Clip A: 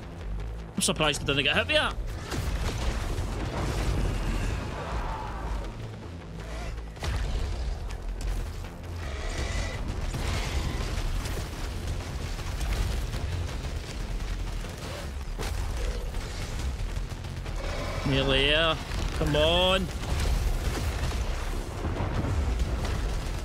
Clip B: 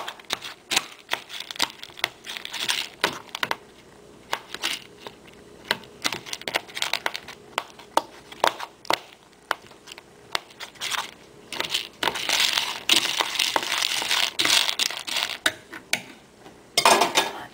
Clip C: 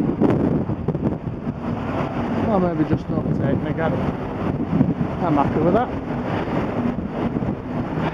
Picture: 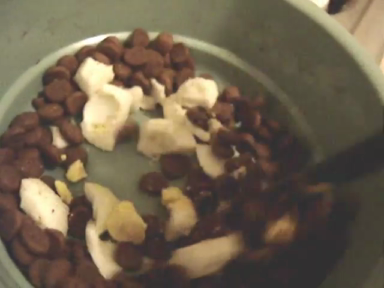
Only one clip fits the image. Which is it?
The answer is B